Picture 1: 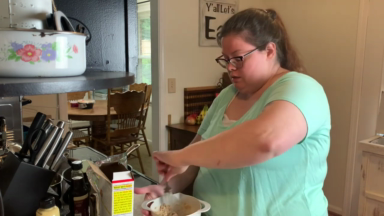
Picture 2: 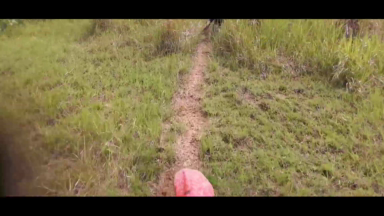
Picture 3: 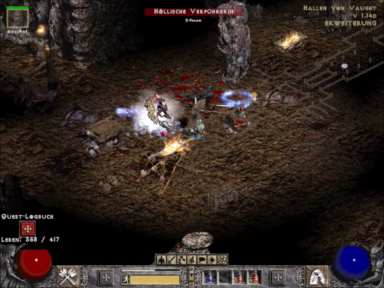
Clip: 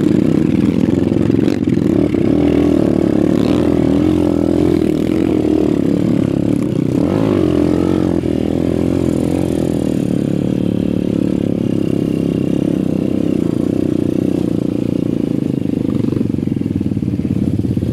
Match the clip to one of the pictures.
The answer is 2